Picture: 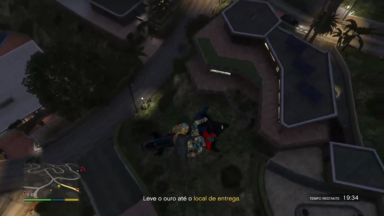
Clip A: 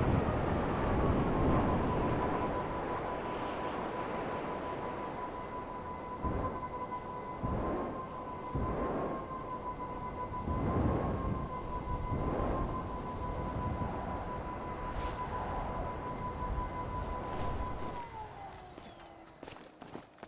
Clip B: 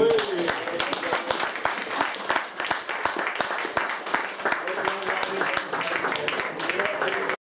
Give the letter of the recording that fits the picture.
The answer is A